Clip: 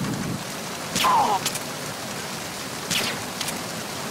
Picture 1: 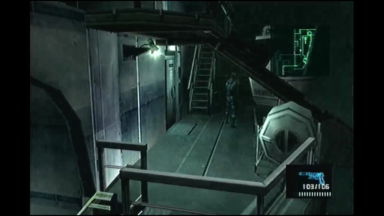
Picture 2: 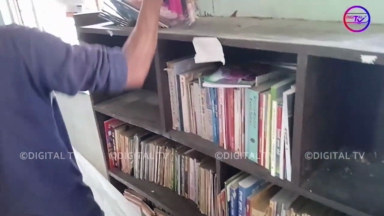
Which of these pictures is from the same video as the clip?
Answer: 1